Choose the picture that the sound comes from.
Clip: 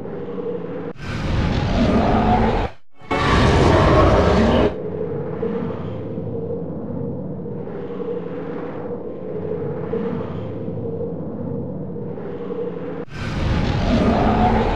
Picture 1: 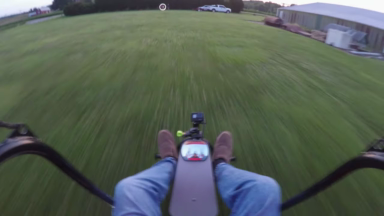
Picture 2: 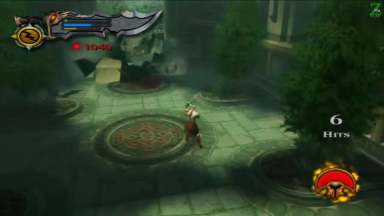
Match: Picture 2